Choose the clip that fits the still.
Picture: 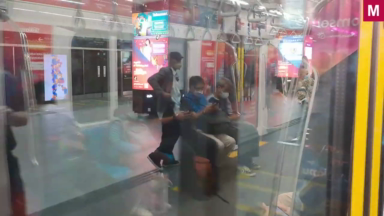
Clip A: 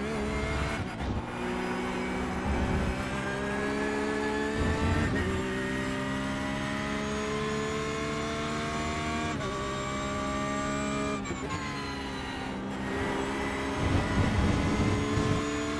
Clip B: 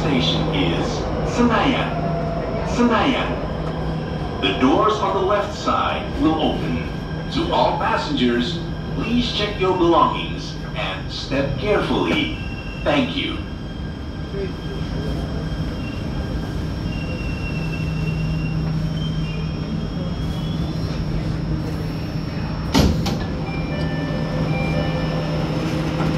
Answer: B